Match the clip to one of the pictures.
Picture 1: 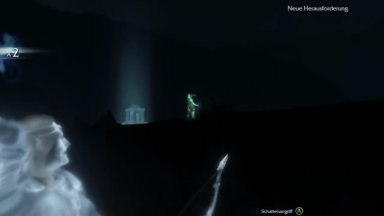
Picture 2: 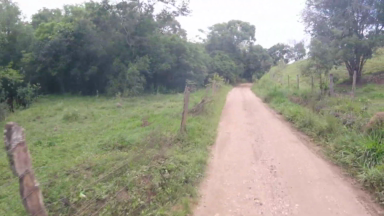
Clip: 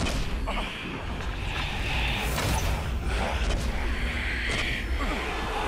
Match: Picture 1